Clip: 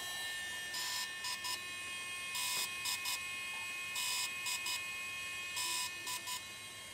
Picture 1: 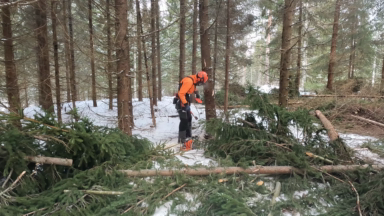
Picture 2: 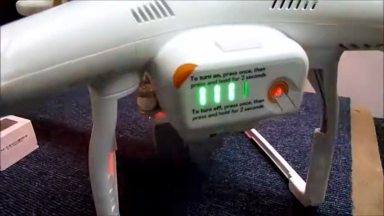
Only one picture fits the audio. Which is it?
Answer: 2